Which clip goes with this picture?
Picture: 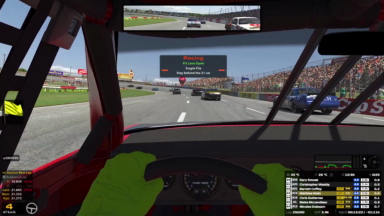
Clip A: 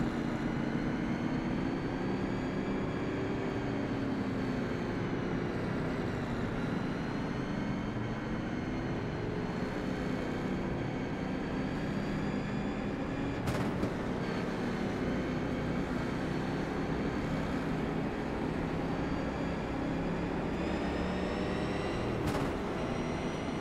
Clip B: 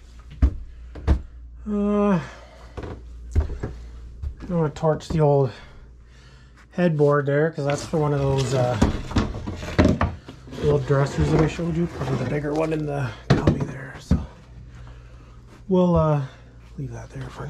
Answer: A